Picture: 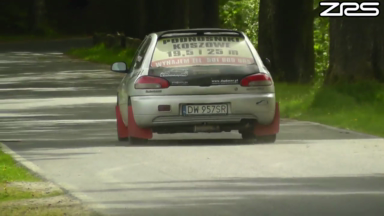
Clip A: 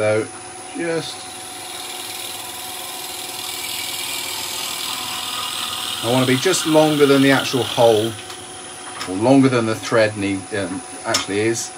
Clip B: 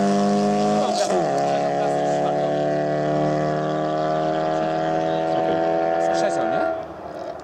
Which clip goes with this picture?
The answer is B